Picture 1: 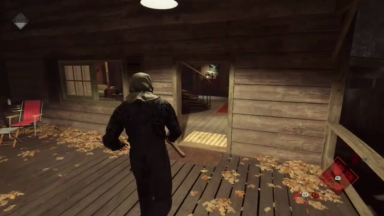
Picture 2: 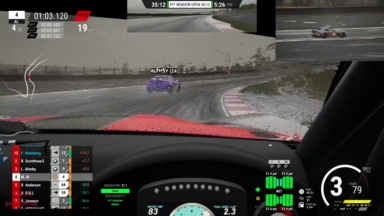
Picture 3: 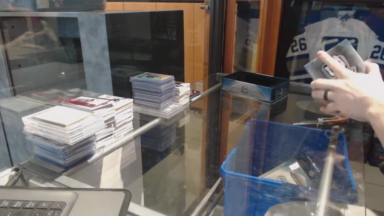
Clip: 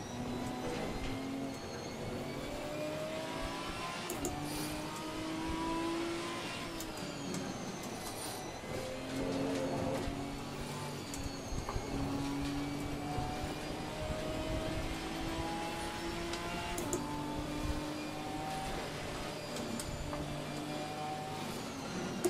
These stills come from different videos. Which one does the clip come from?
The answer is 2